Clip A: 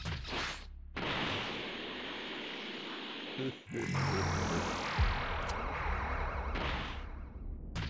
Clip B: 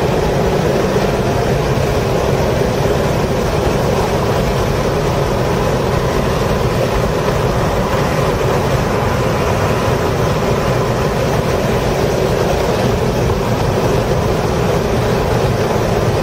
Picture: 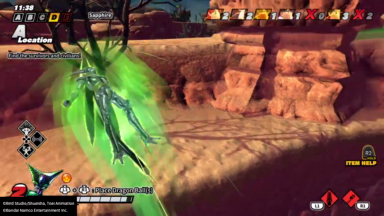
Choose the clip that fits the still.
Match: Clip A